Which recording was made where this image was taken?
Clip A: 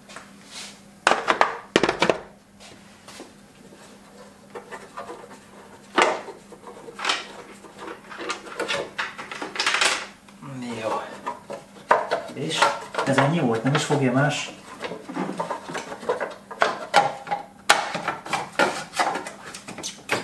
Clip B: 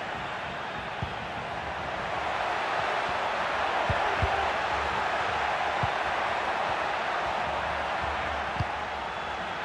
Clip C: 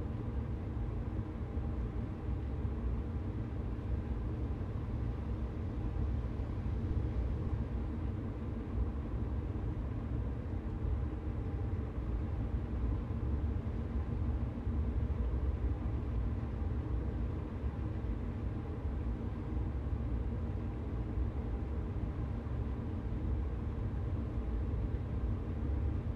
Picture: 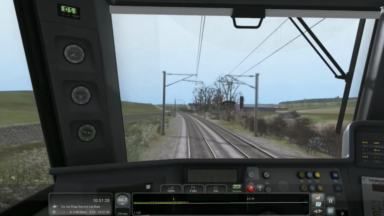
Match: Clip C